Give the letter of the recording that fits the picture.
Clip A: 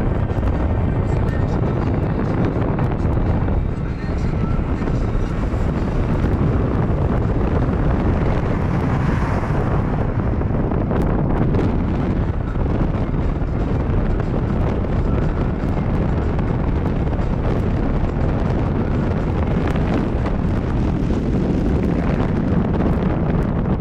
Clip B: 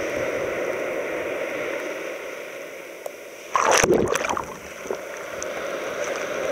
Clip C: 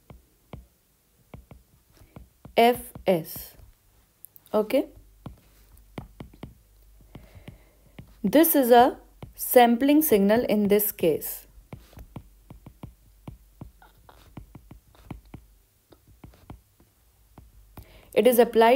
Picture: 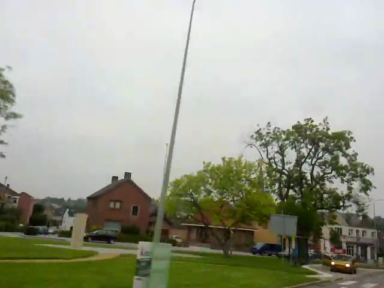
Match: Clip A